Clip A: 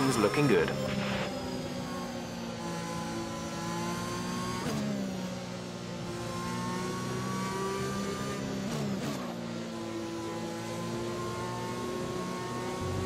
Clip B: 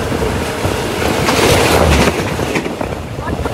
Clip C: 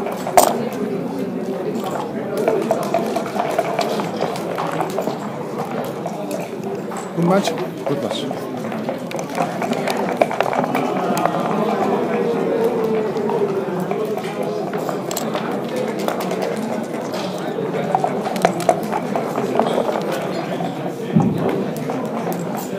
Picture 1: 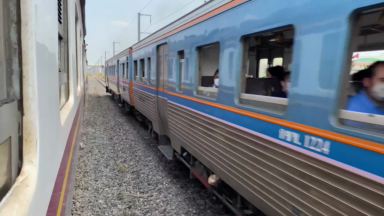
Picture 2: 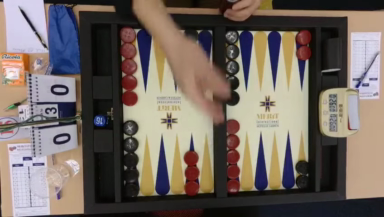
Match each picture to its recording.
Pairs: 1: B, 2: C